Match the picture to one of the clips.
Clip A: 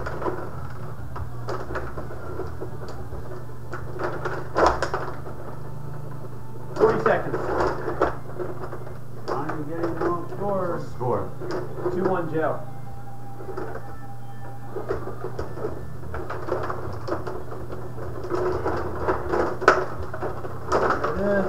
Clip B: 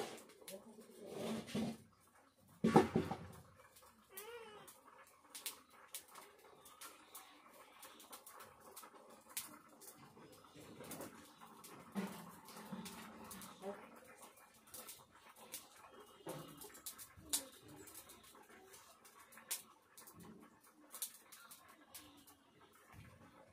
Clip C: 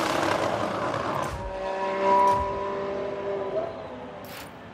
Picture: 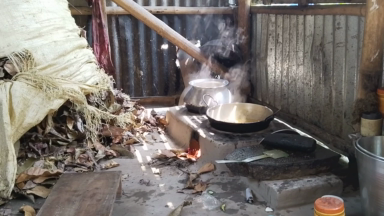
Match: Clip B